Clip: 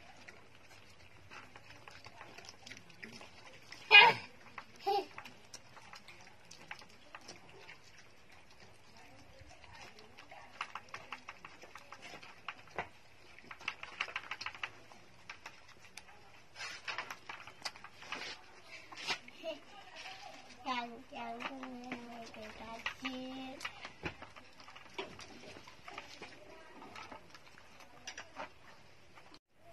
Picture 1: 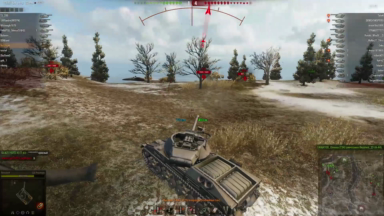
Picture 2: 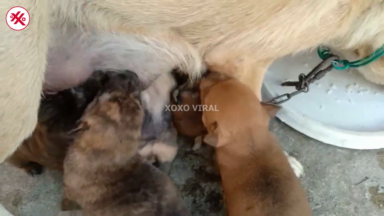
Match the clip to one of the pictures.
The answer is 2